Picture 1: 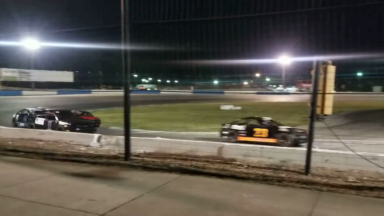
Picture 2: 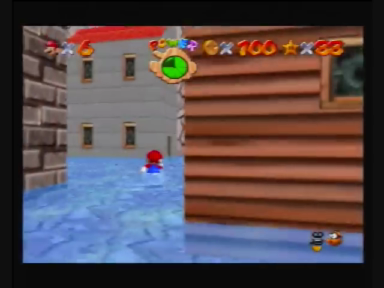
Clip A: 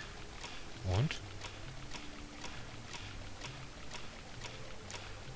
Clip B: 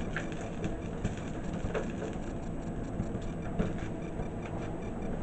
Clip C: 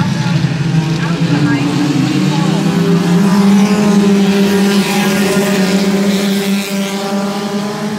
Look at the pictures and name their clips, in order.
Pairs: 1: C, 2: A